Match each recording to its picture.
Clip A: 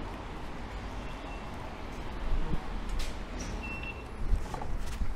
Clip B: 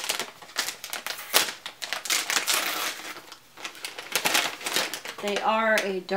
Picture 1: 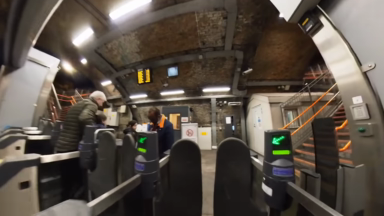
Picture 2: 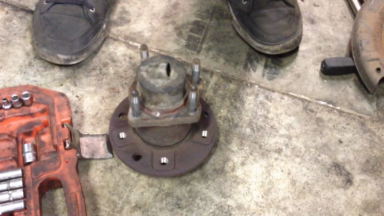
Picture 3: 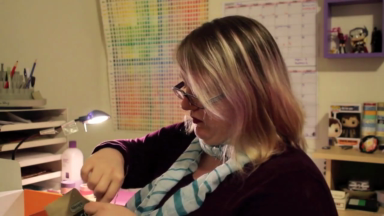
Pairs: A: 1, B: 3